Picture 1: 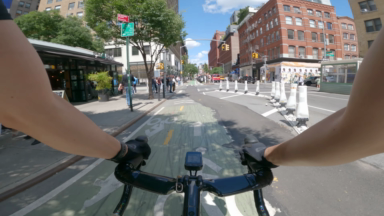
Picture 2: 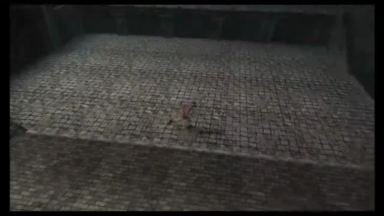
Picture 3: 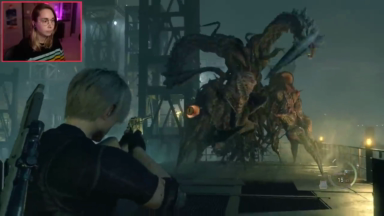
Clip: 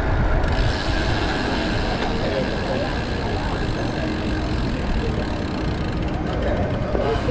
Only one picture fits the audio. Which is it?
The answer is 1